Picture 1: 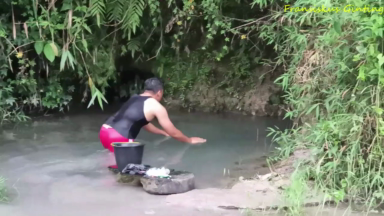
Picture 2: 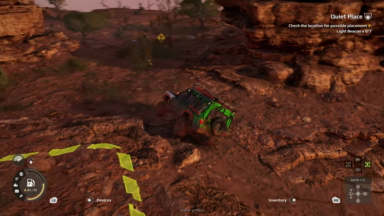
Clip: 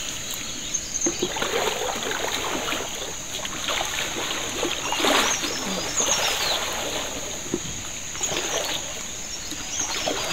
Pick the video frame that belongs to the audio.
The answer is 1